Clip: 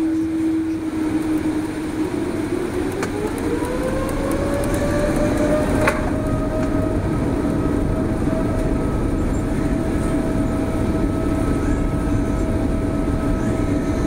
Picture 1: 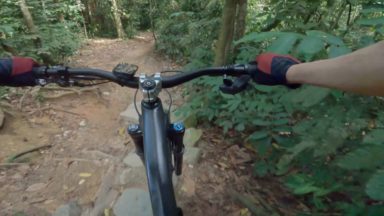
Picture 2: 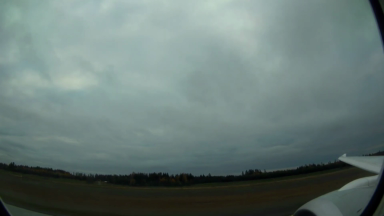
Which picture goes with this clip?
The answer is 2